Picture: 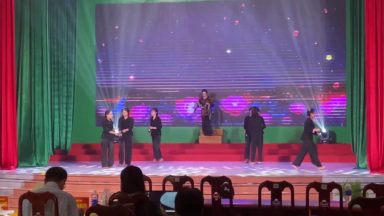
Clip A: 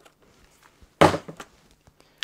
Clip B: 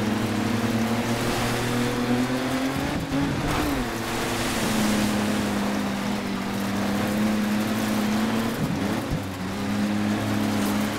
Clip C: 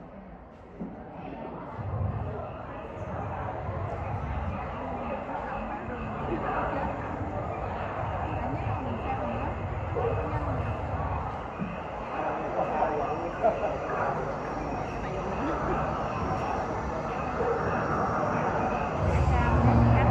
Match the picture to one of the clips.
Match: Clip C